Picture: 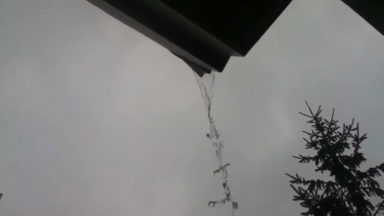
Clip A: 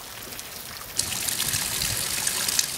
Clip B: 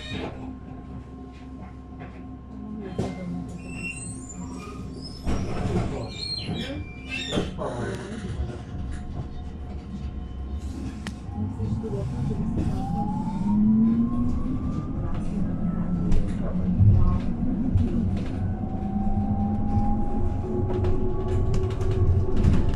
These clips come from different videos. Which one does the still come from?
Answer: A